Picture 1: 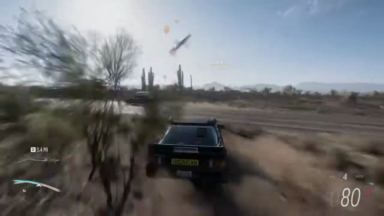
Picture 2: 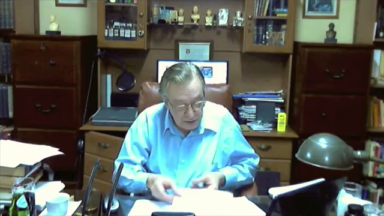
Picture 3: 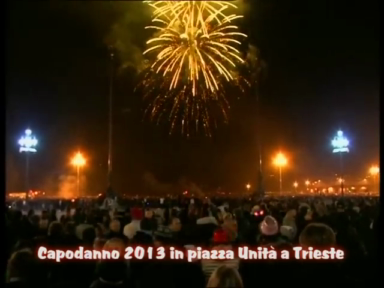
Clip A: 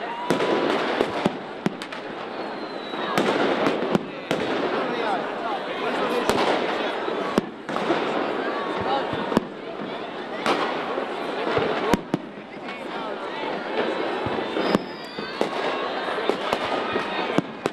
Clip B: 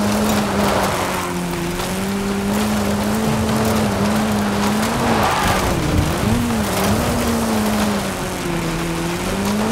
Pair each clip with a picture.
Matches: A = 3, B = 1